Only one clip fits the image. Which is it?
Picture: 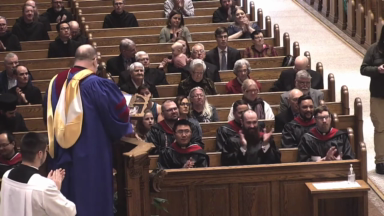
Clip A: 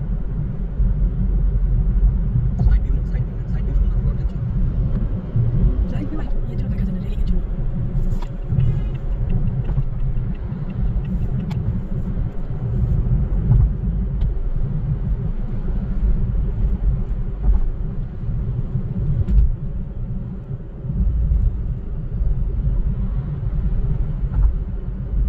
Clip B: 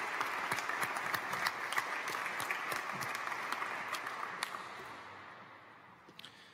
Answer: B